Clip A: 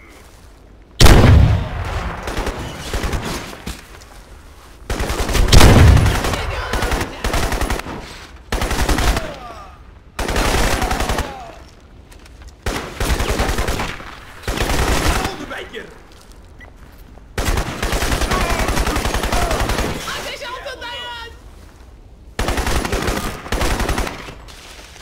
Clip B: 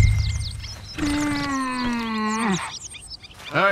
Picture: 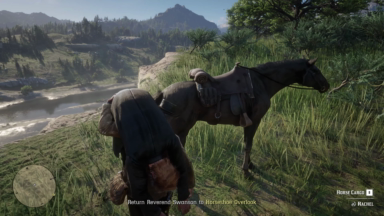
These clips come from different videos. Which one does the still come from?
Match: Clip B